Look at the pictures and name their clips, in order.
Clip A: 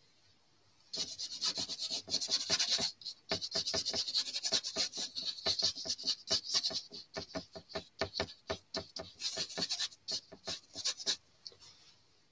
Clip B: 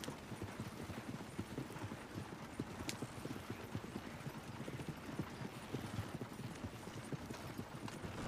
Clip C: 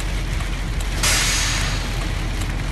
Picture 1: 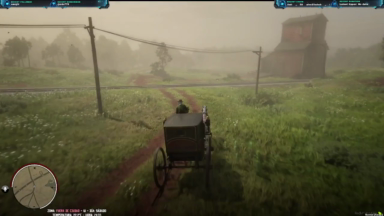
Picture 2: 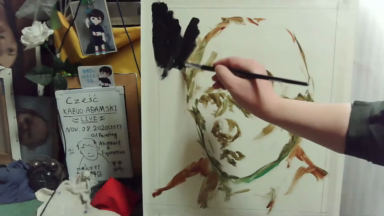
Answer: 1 B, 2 A